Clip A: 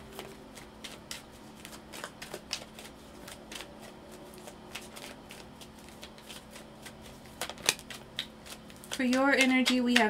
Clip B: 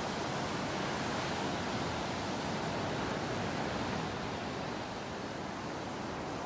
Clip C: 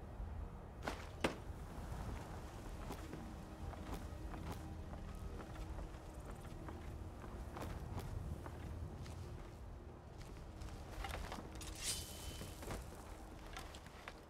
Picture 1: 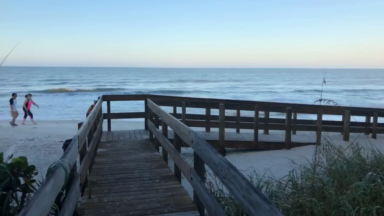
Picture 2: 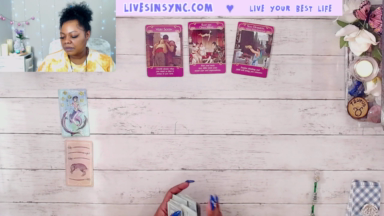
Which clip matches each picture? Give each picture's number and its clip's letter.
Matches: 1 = B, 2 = A